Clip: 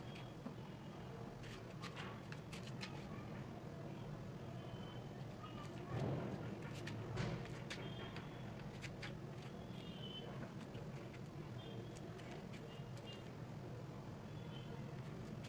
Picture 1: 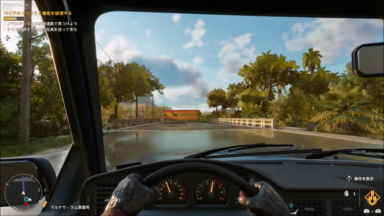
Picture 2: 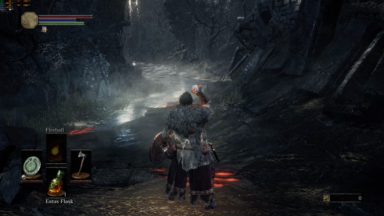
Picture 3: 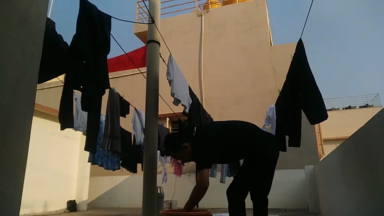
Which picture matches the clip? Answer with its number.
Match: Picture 3